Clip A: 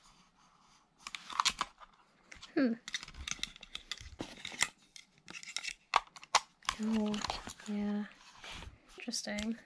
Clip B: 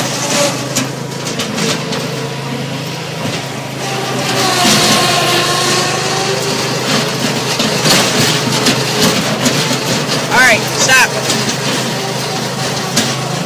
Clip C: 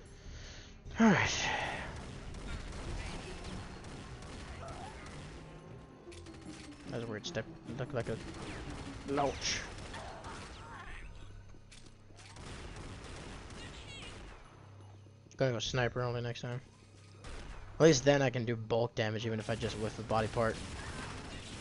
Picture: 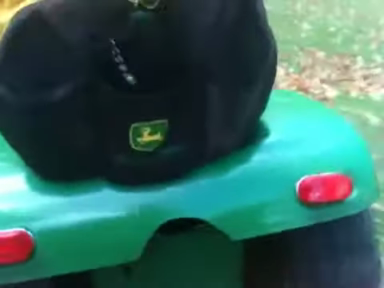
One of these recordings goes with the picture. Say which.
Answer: B